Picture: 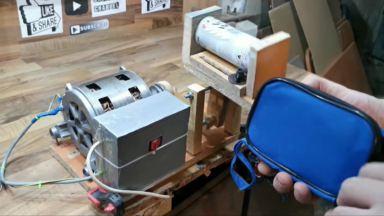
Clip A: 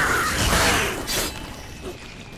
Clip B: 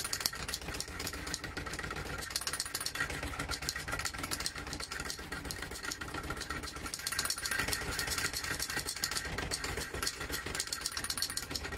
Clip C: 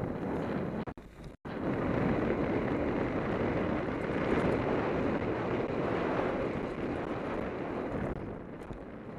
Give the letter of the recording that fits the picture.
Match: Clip B